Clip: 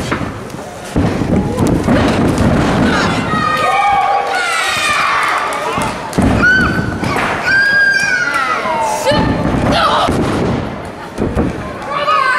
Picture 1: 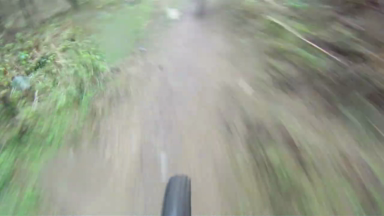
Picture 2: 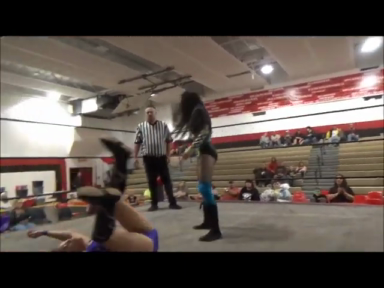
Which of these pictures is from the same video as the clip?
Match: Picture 2